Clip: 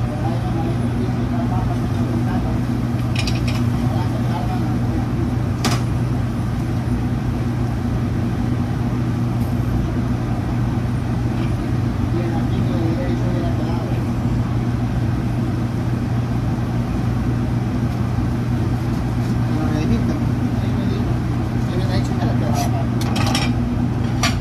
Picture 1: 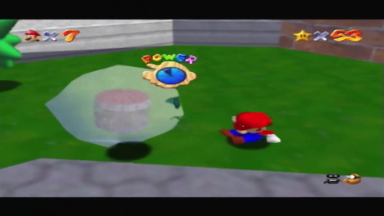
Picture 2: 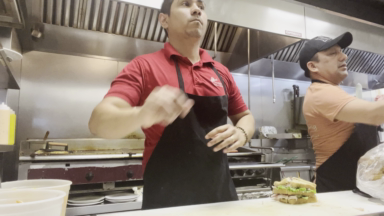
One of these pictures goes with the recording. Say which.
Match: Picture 2